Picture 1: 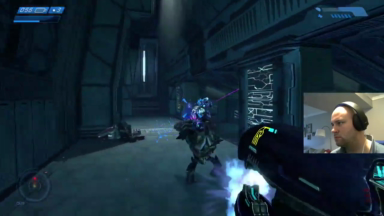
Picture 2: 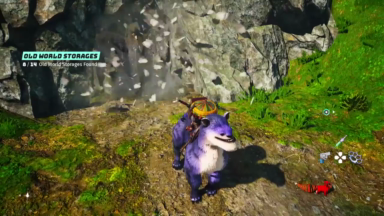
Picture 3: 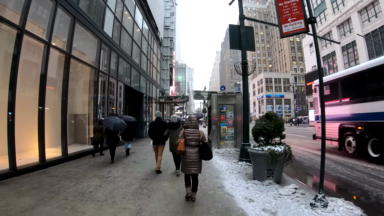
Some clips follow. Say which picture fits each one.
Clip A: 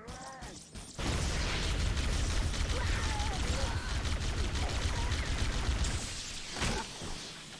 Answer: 1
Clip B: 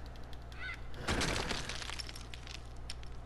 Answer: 2